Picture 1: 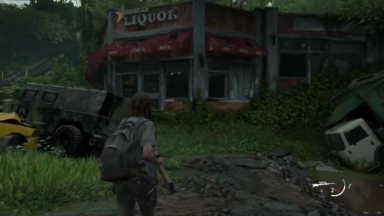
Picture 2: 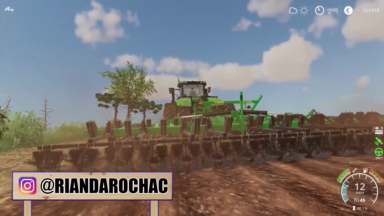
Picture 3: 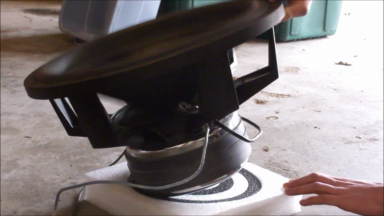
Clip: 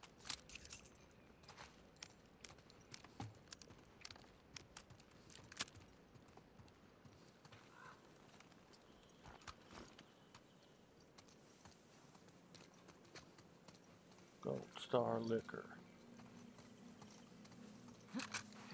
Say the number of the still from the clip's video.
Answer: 1